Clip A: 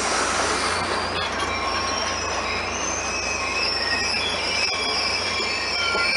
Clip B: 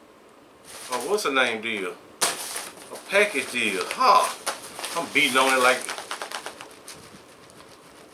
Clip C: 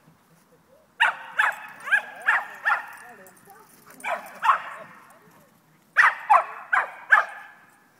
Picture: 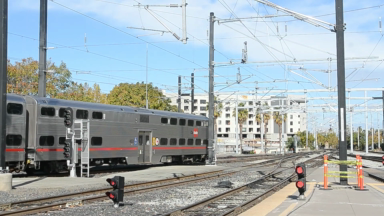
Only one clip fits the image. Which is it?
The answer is A